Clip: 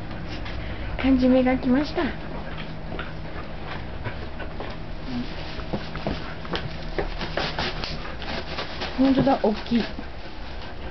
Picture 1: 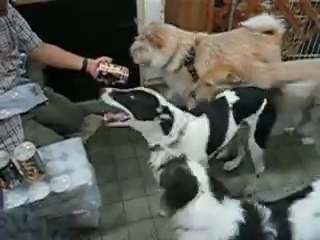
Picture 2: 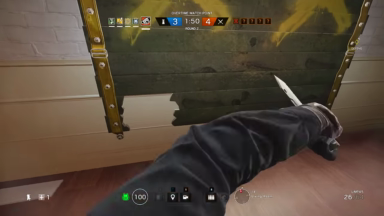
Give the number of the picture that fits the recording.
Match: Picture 1